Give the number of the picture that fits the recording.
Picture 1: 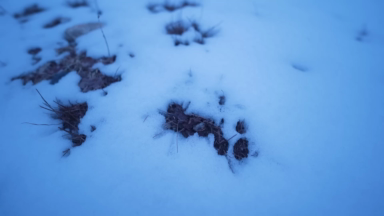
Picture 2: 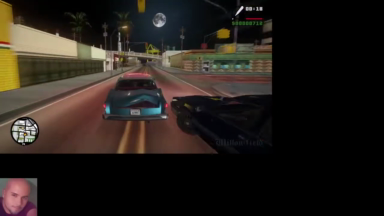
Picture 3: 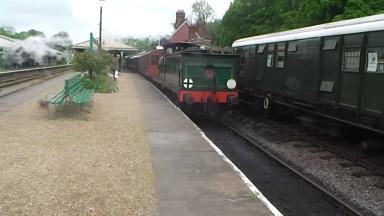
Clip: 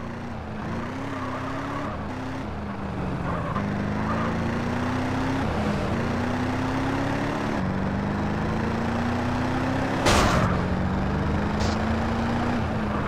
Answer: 2